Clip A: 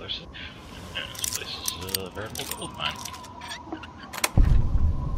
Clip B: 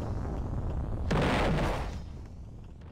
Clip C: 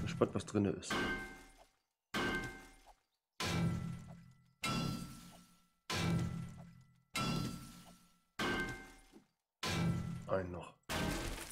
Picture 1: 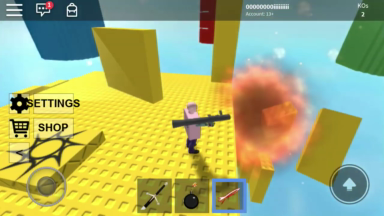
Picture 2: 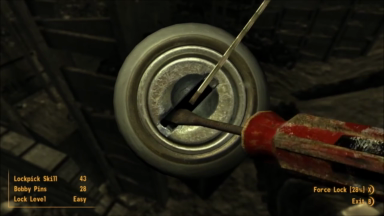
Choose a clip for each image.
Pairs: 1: B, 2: A